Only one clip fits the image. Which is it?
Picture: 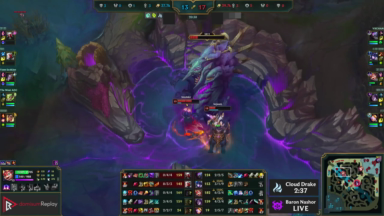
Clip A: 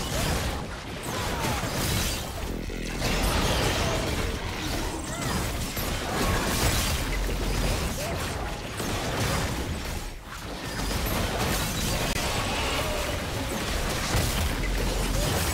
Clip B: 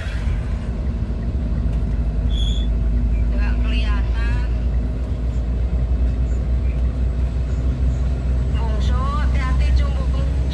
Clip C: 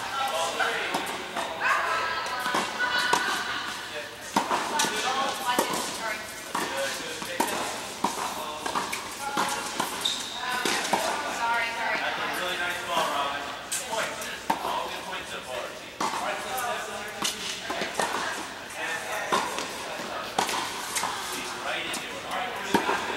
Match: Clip A